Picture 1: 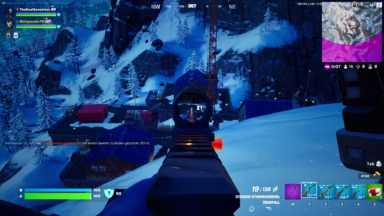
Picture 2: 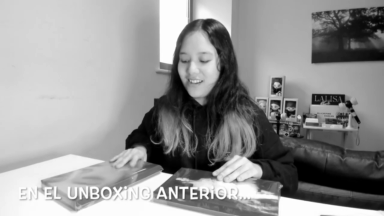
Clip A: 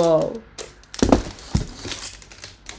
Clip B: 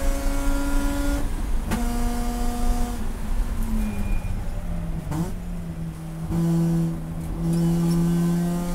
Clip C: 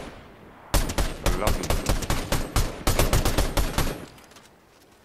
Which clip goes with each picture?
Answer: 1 C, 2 A